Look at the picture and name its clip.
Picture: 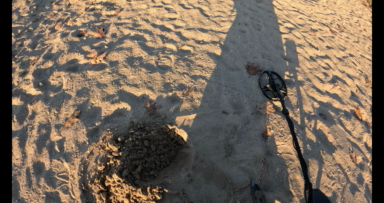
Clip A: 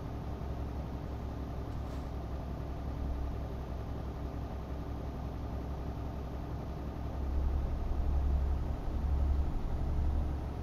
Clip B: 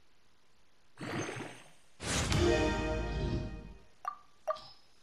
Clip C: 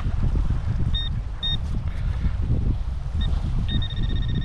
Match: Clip C